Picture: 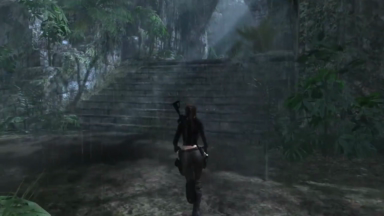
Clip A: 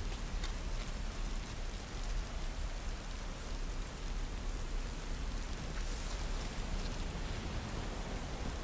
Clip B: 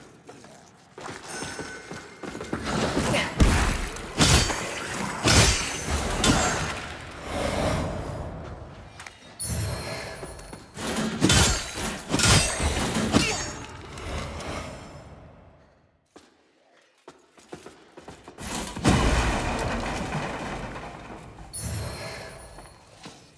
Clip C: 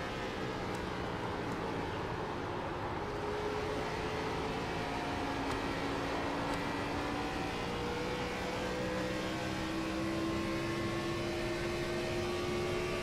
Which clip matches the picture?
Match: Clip A